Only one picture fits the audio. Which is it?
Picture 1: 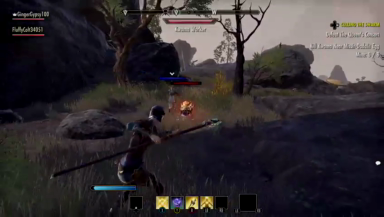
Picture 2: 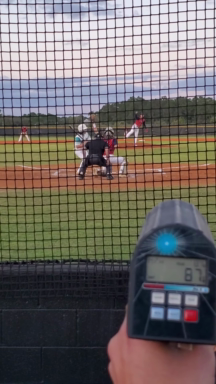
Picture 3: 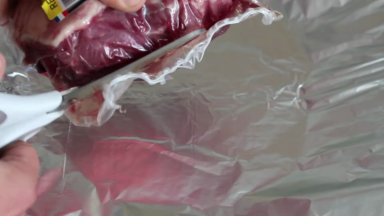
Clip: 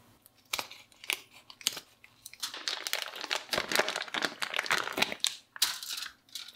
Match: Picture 3